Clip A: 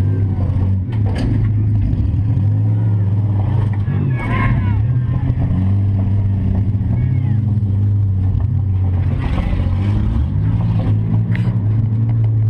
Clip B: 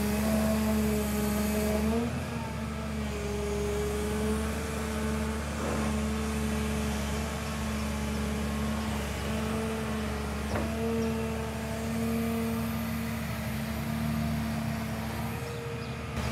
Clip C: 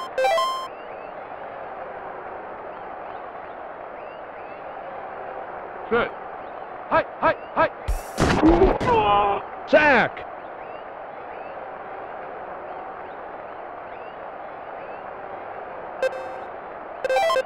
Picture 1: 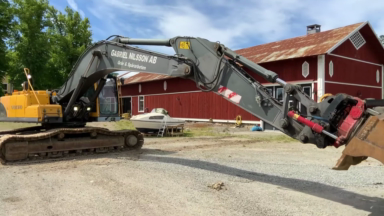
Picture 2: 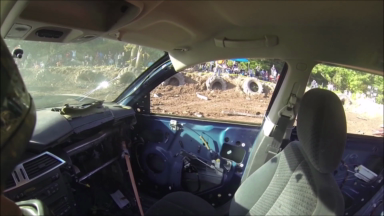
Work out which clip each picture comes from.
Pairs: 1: B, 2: A